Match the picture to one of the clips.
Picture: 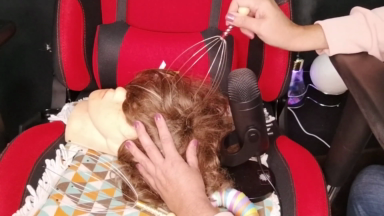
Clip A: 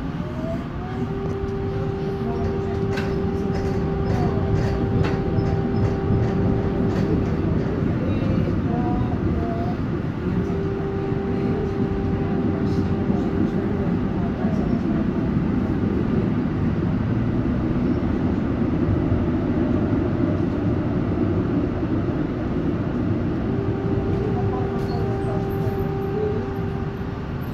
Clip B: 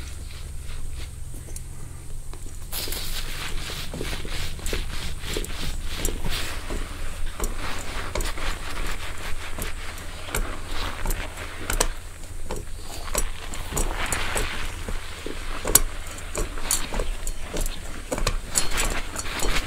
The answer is B